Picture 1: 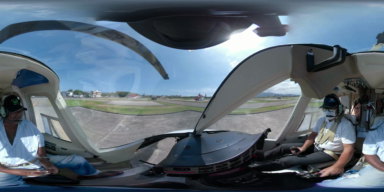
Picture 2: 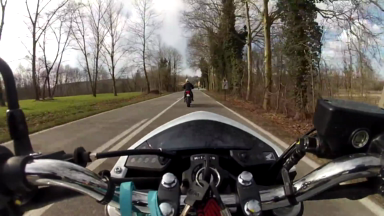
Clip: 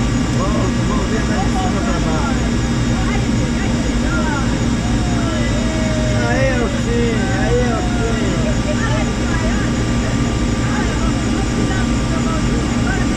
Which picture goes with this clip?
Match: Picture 1